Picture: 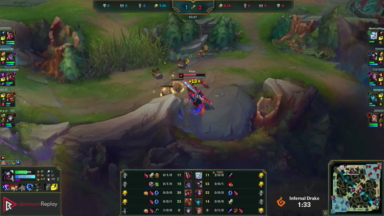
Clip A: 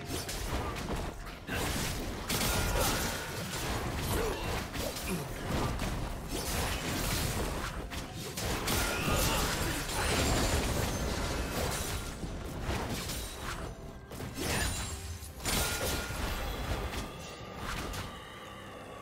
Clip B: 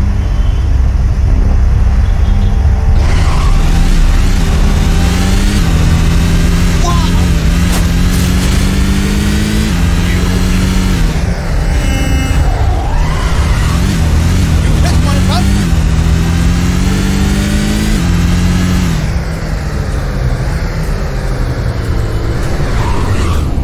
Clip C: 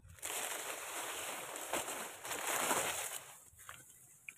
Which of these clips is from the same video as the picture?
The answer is A